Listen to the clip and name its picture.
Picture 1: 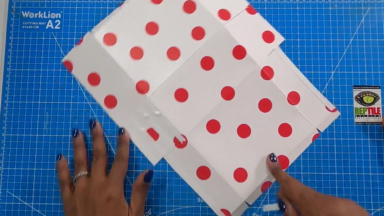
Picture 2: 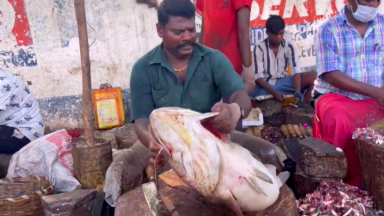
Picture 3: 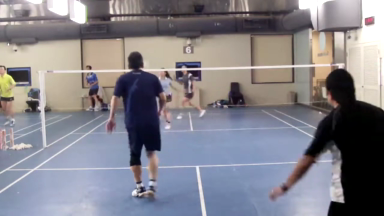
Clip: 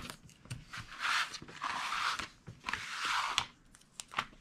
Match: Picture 1